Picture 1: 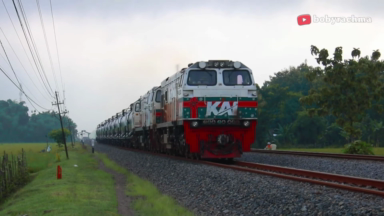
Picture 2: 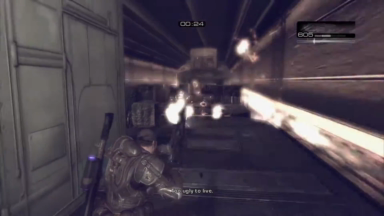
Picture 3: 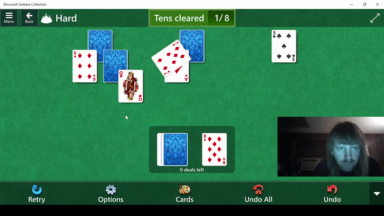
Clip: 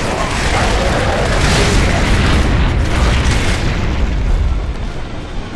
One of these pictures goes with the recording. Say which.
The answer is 2